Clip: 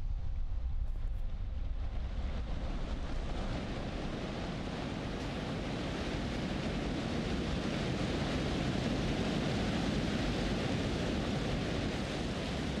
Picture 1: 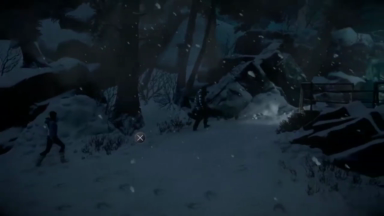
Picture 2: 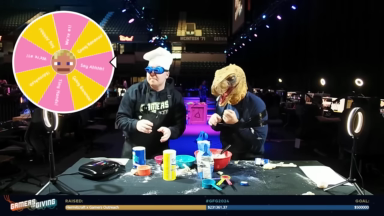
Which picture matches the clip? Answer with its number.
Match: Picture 1